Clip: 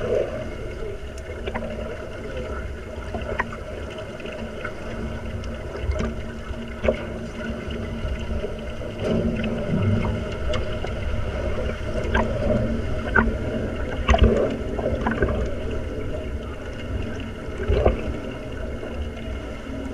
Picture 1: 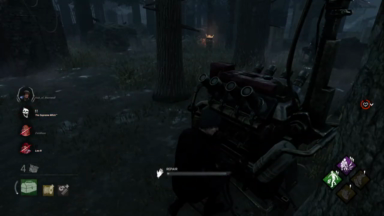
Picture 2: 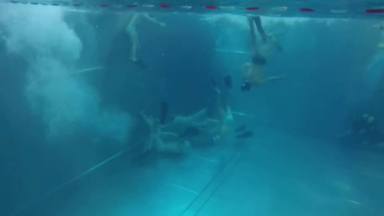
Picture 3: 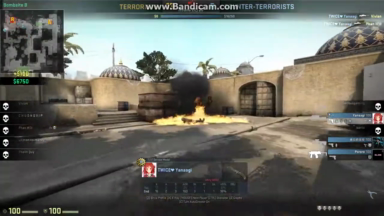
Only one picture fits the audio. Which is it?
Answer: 2